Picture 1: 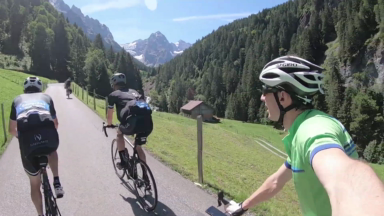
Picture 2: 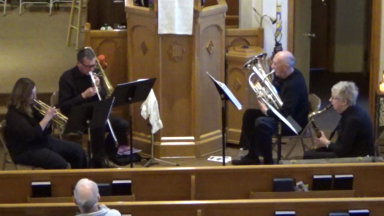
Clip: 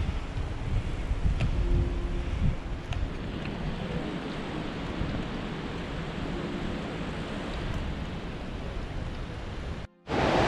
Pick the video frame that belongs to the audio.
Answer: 1